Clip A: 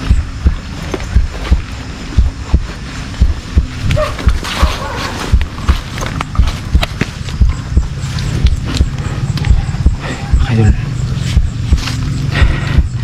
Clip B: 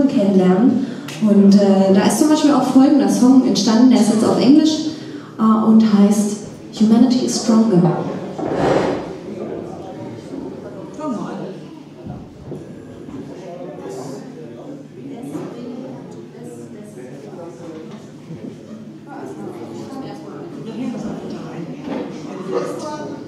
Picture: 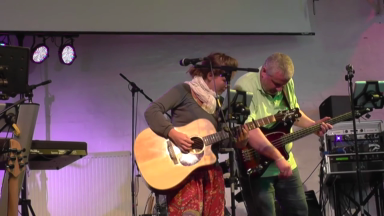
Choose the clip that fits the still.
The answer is B